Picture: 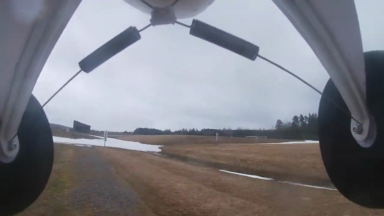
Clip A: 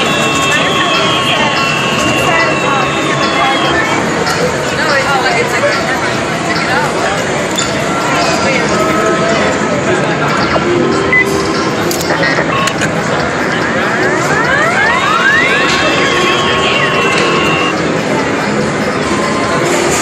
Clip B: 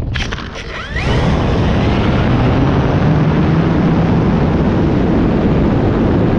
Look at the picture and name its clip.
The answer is B